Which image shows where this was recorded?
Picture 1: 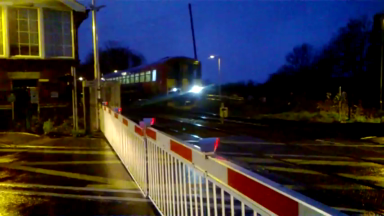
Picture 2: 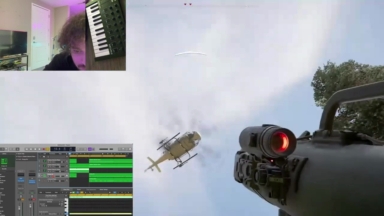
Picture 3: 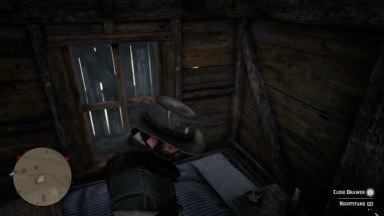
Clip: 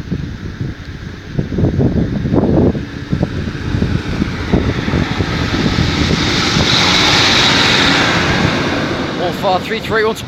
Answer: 1